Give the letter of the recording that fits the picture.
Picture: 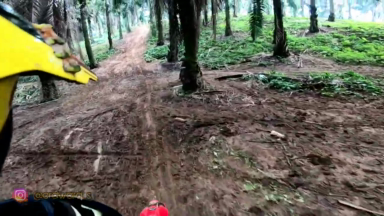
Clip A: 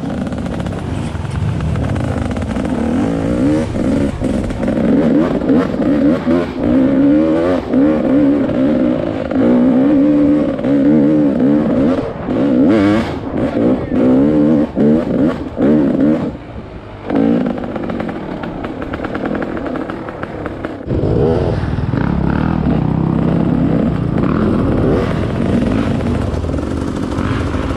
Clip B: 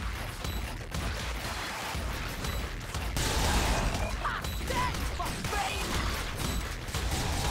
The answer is A